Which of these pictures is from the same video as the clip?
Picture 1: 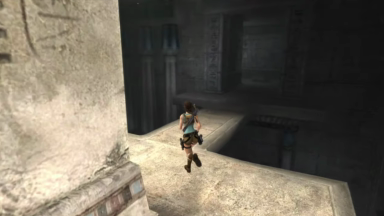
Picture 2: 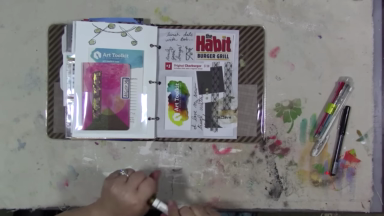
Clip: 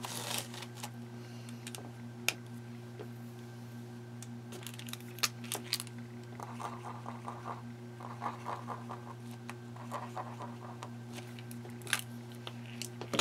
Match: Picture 2